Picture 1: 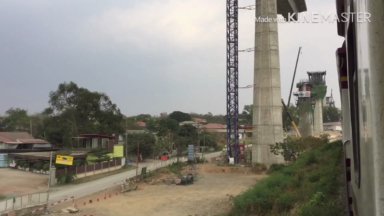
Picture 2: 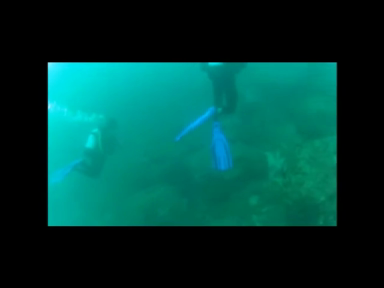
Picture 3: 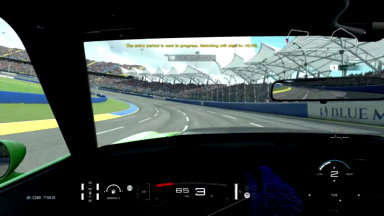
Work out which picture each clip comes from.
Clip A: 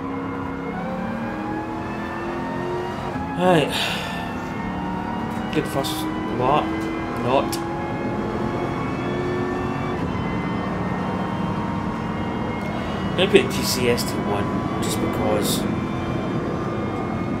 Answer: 3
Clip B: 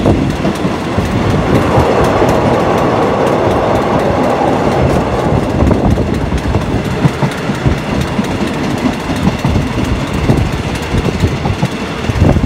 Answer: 1